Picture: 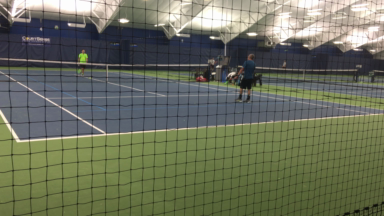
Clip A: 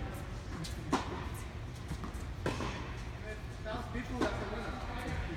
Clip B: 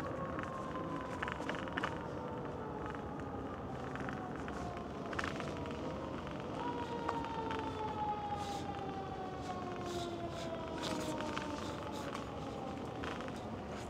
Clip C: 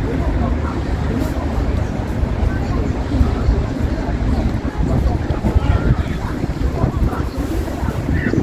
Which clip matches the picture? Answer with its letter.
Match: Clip A